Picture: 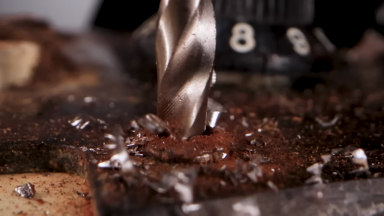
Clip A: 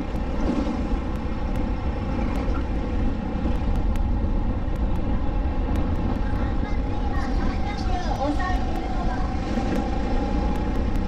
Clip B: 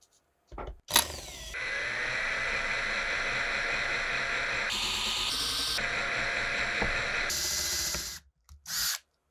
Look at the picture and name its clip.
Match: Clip B